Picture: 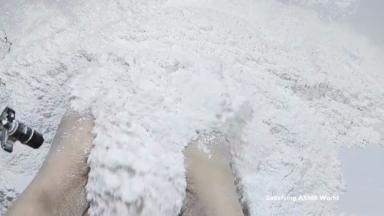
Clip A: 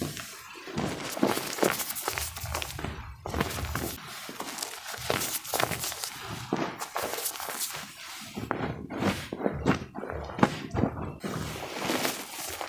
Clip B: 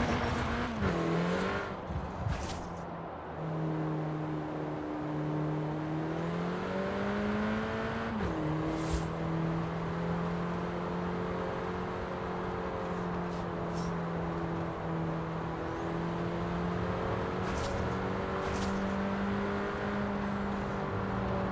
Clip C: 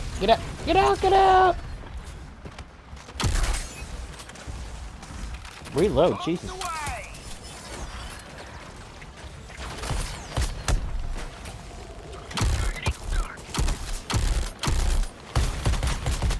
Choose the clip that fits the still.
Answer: A